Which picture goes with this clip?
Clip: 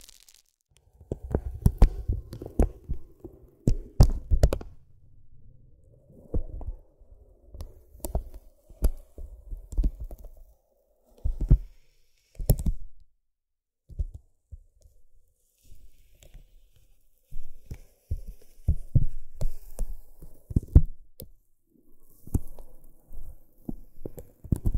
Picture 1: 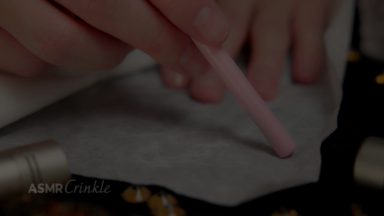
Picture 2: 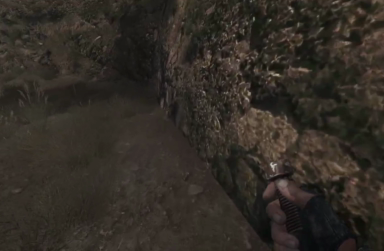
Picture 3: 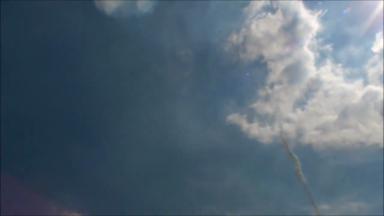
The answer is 1